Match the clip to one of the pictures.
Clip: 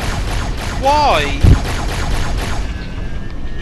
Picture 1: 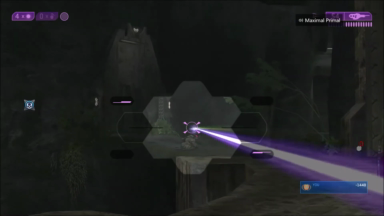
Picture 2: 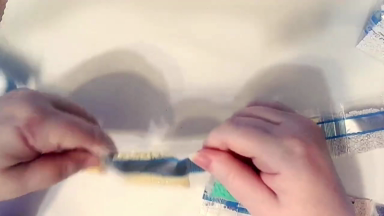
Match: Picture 1